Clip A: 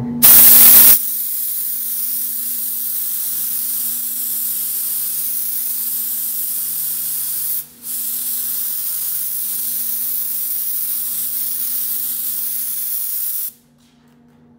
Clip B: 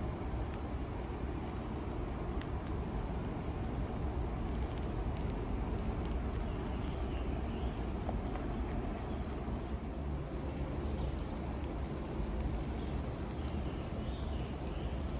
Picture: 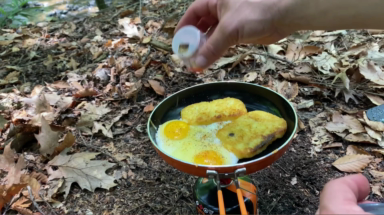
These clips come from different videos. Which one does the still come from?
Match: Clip B